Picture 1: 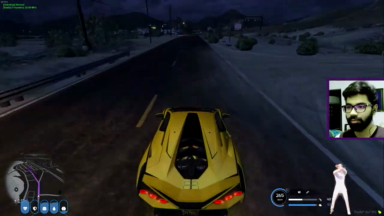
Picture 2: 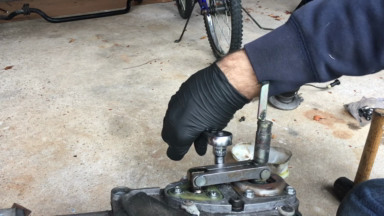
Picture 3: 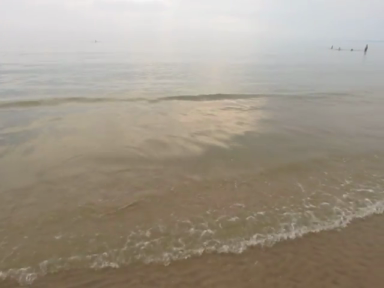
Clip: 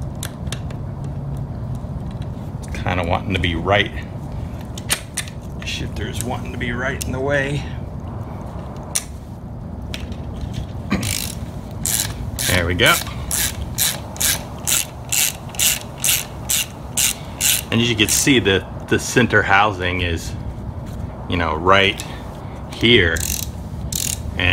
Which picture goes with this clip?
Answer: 2